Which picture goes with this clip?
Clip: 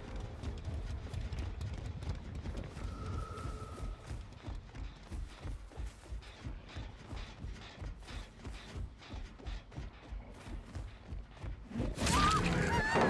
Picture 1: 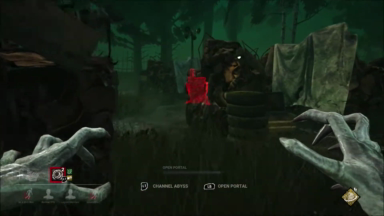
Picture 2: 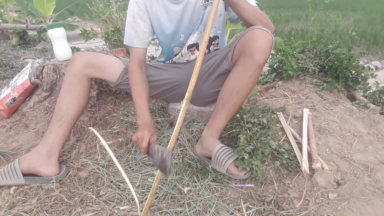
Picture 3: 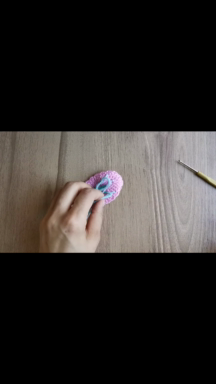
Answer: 1